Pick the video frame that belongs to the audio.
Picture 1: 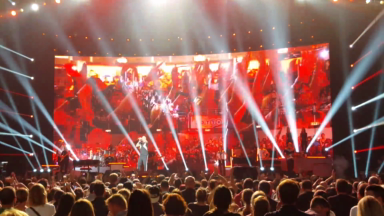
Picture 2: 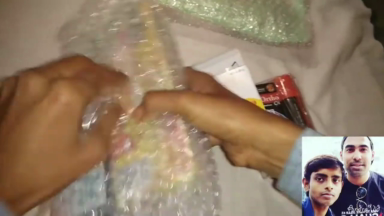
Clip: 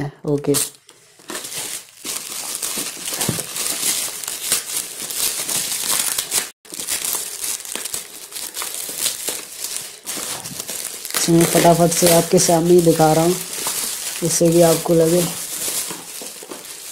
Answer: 2